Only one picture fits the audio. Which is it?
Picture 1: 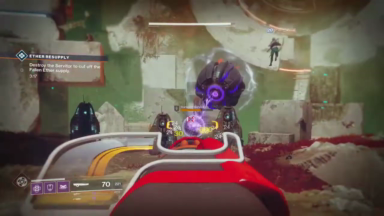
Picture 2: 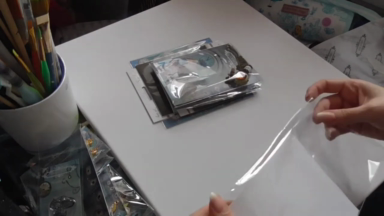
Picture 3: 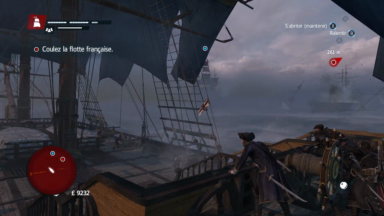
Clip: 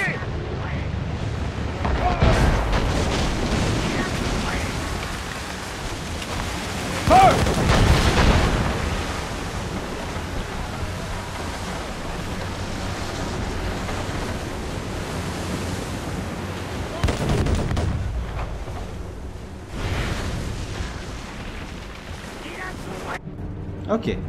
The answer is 3